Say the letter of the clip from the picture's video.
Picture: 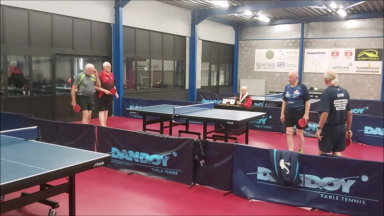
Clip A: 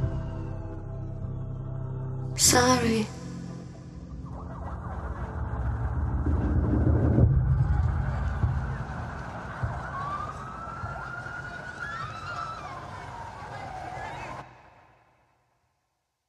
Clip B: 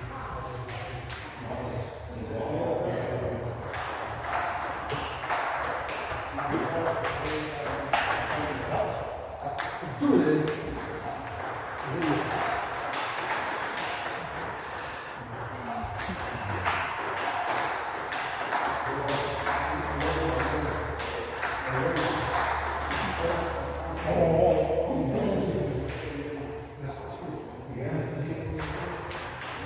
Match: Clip B